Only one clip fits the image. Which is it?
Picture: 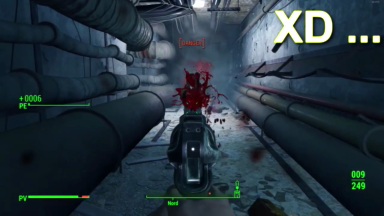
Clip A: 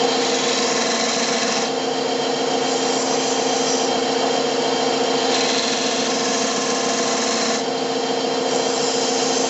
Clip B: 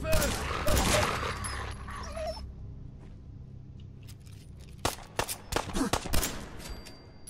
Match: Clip B